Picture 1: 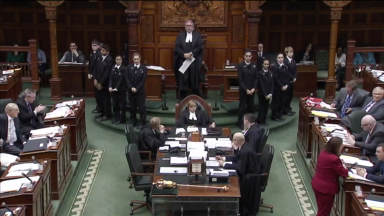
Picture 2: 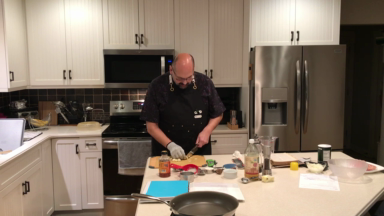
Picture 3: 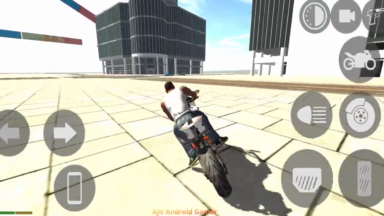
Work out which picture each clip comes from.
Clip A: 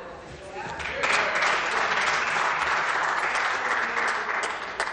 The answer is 1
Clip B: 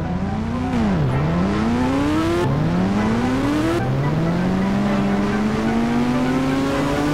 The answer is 3